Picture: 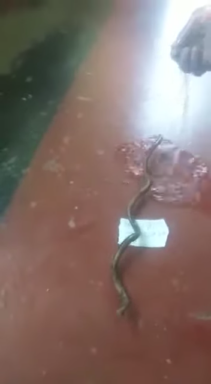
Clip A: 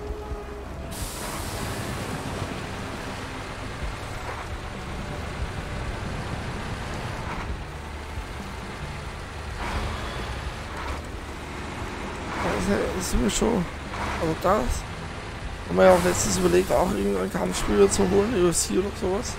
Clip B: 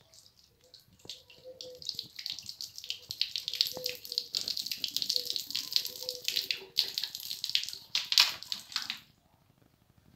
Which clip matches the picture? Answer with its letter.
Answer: B